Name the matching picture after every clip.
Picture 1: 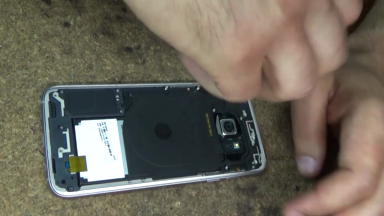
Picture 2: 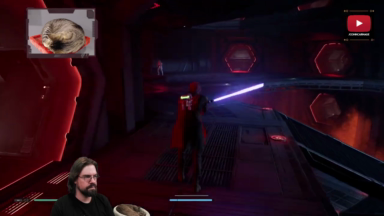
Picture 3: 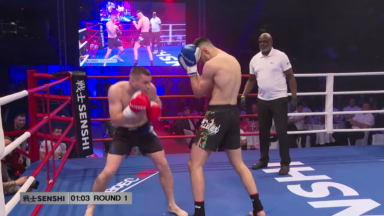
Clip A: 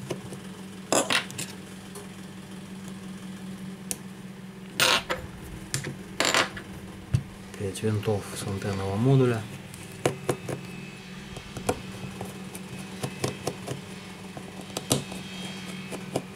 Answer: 1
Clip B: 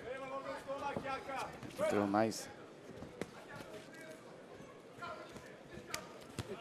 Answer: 3